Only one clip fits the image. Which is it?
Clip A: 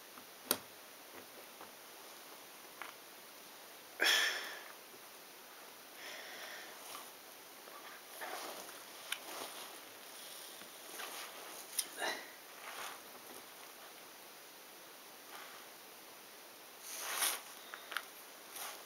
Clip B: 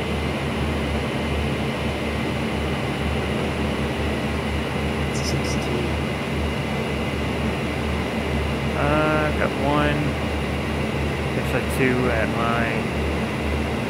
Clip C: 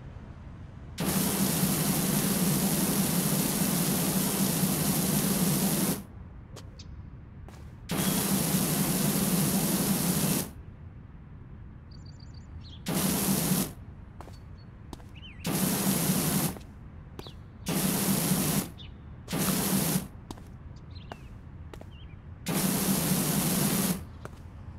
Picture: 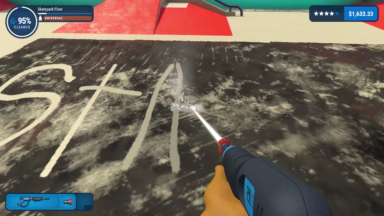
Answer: C